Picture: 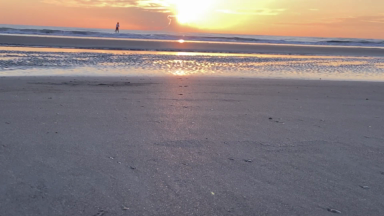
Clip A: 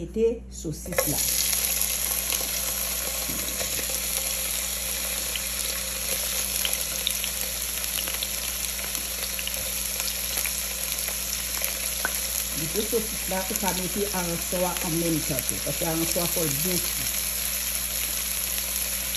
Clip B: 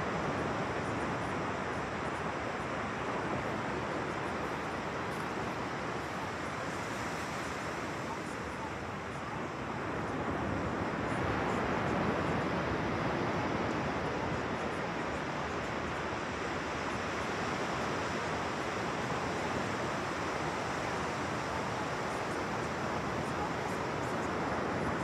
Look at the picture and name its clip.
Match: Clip B